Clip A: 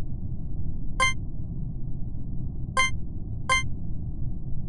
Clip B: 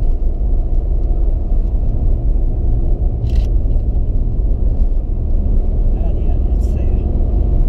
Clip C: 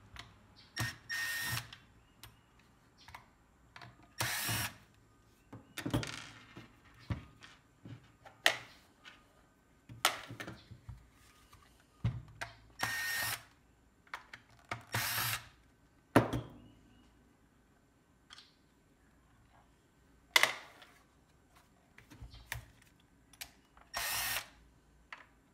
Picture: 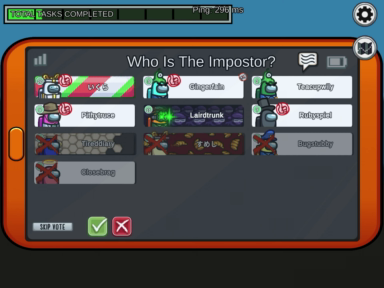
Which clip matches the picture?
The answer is A